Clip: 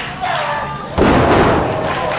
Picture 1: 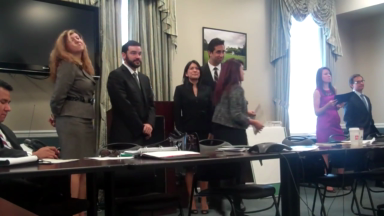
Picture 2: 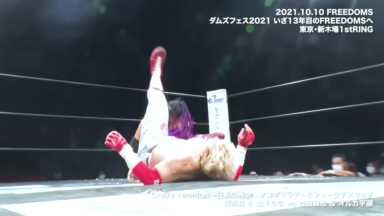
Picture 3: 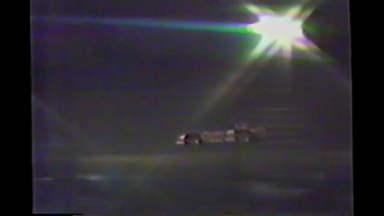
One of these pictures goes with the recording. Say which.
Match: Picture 2